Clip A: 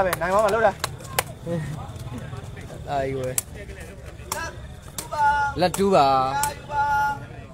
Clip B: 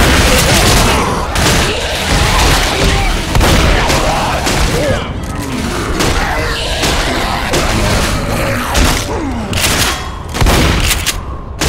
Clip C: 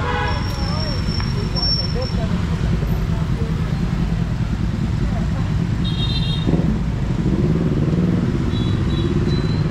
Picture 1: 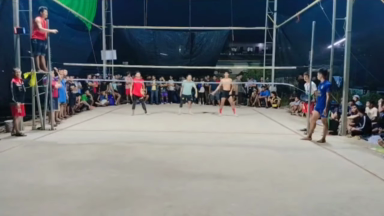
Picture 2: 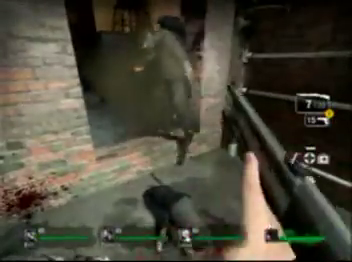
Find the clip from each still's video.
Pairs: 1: A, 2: B